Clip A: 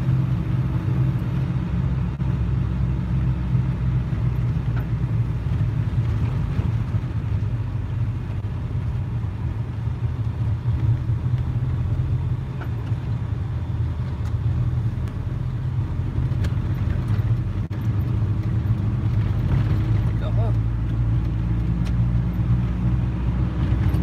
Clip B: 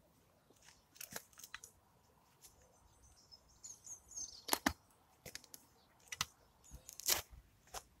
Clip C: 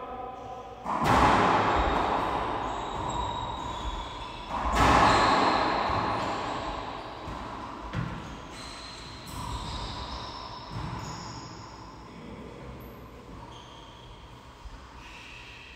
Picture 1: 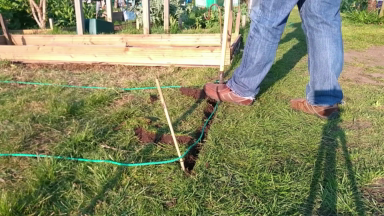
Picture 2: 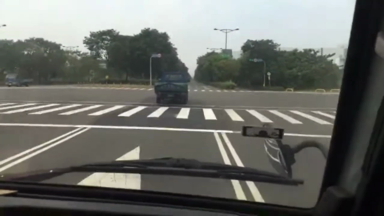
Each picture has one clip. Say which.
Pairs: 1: B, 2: A